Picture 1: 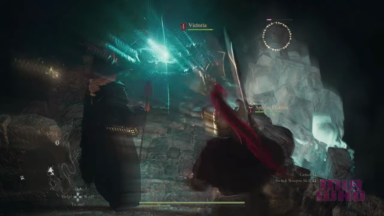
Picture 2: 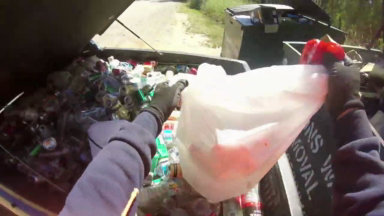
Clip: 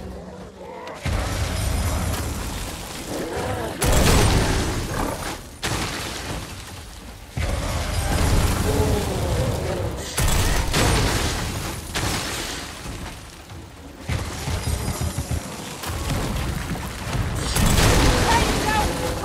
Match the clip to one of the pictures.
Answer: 1